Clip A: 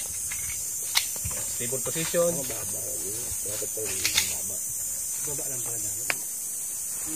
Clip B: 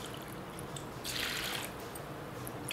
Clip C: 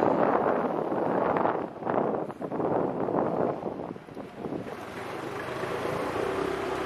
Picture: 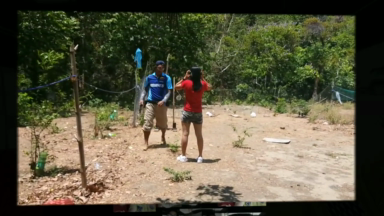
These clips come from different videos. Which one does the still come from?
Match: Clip A